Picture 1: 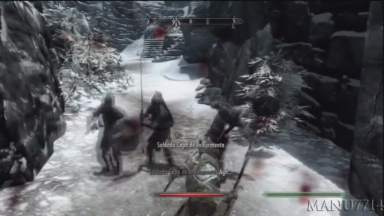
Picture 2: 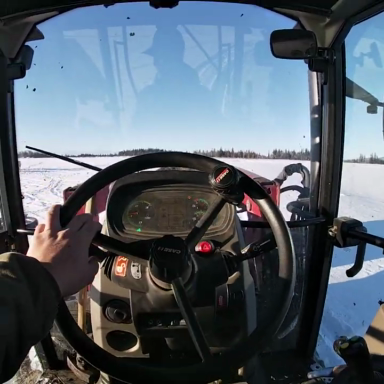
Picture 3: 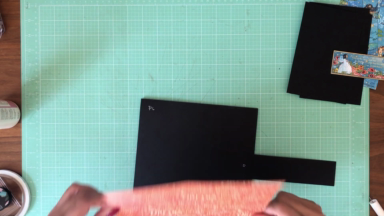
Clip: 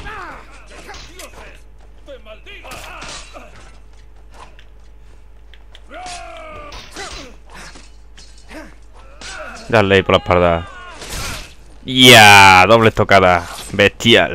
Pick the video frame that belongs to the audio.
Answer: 1